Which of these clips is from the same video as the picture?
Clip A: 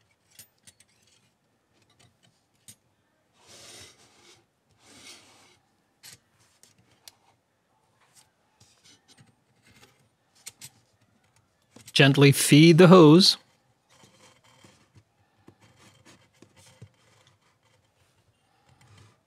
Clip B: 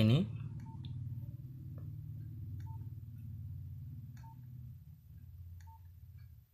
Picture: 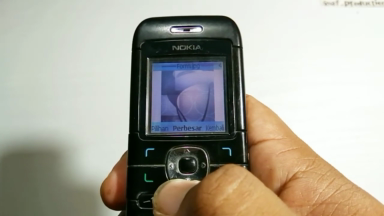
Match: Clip B